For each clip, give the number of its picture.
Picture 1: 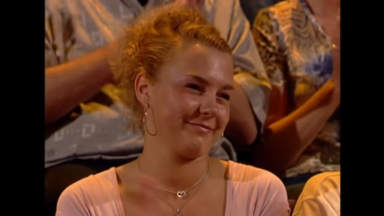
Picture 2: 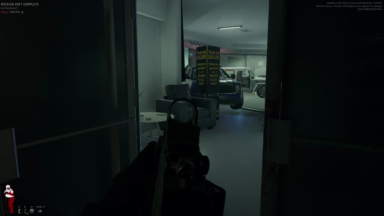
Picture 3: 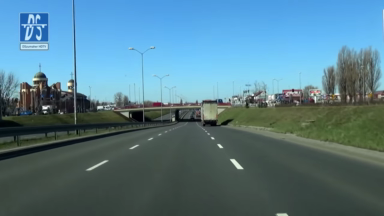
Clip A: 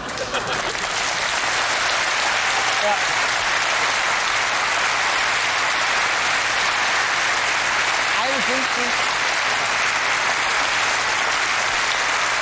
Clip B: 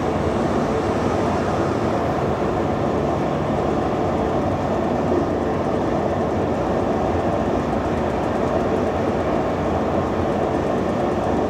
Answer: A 1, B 3